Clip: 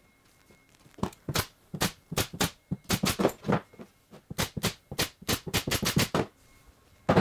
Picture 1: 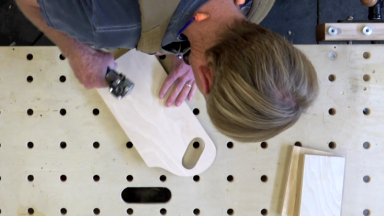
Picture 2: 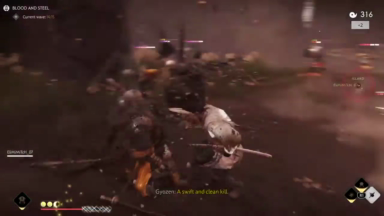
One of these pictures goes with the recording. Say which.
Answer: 1